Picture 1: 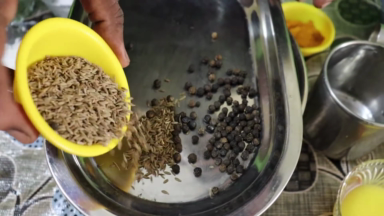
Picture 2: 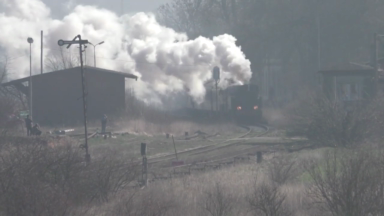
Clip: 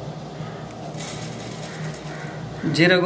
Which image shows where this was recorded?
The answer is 1